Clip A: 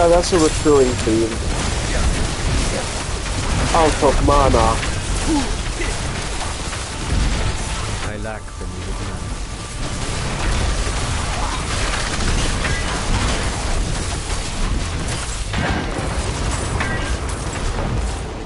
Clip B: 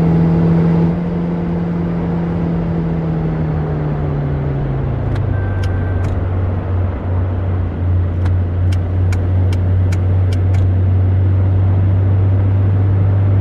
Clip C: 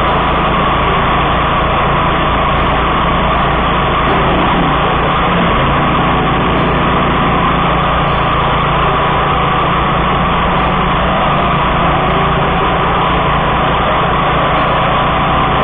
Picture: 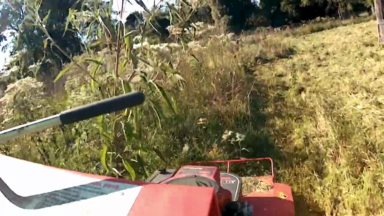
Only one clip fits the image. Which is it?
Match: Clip C